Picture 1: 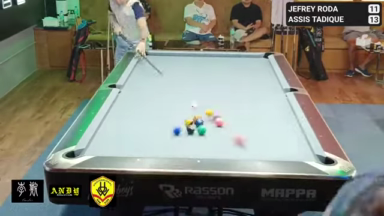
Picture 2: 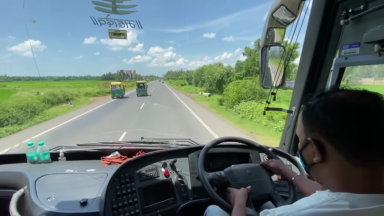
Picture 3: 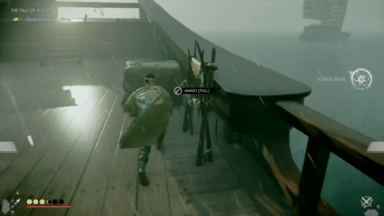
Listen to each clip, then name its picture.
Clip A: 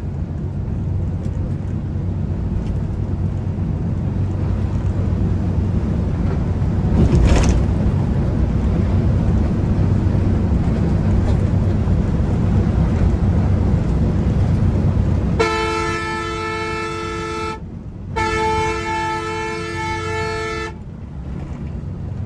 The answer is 2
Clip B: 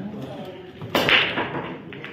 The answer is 1